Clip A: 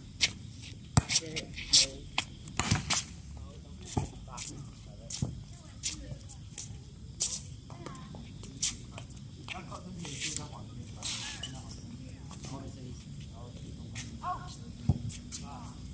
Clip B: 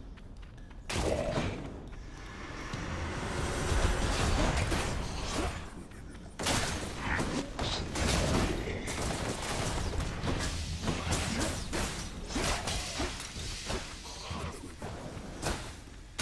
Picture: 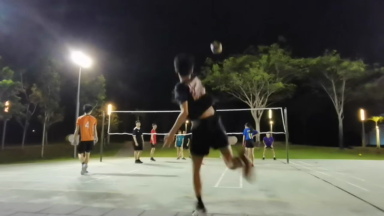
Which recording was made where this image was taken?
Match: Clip A